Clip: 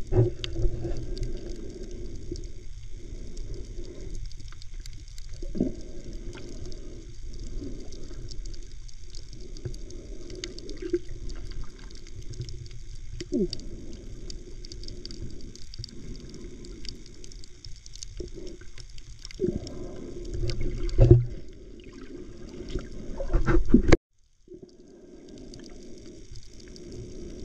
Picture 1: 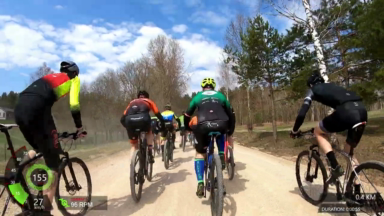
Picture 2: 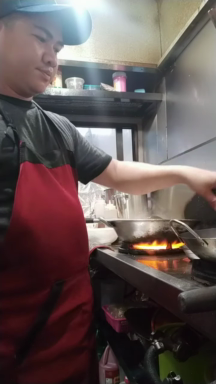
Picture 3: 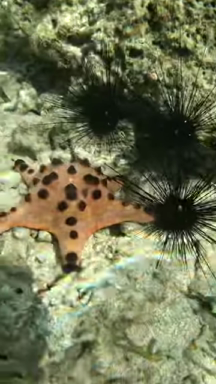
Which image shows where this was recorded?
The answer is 3